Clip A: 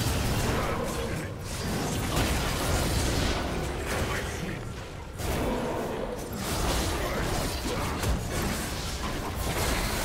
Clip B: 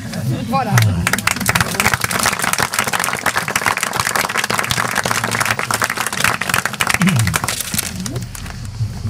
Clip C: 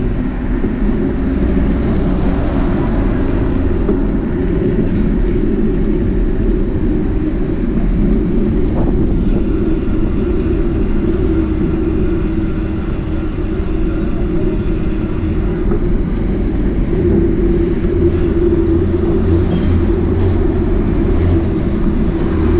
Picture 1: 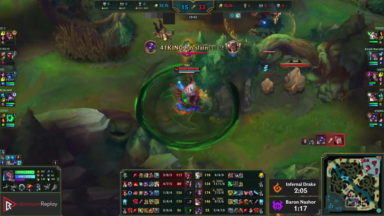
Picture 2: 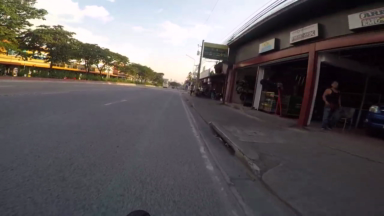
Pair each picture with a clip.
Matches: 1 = A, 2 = C